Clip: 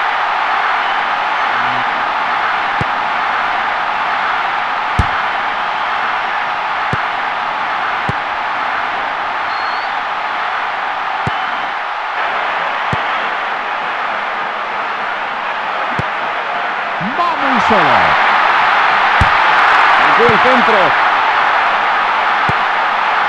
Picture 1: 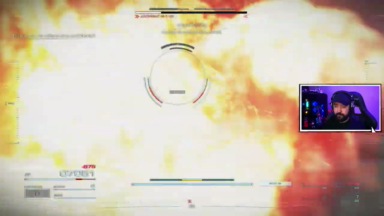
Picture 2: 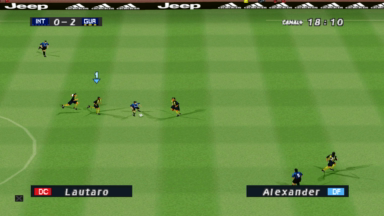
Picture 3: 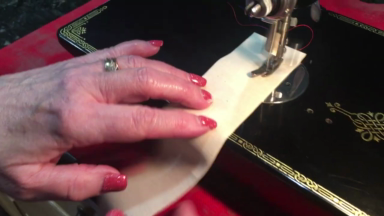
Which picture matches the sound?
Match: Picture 2